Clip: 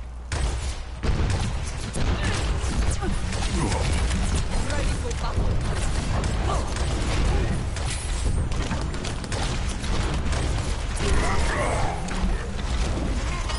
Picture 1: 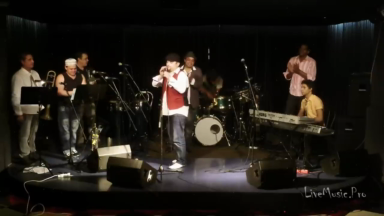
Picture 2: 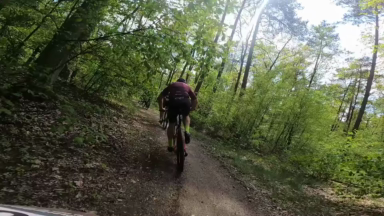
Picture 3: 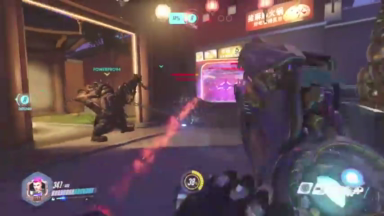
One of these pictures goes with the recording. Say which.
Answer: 3